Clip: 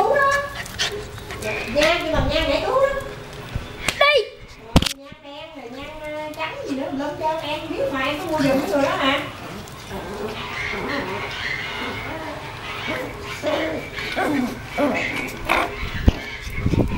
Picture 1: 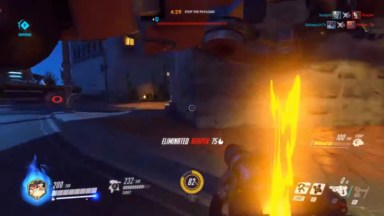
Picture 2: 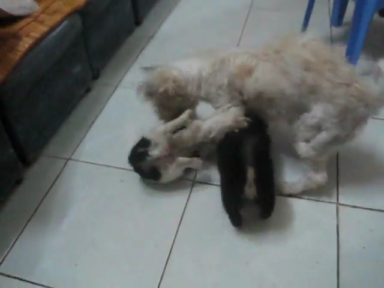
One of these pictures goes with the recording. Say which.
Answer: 2